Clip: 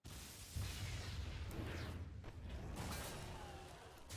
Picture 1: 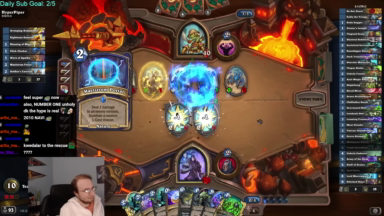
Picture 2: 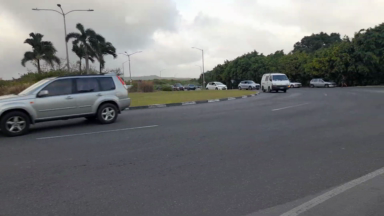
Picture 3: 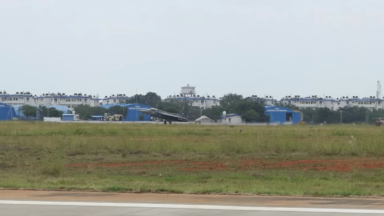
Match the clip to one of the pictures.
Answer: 1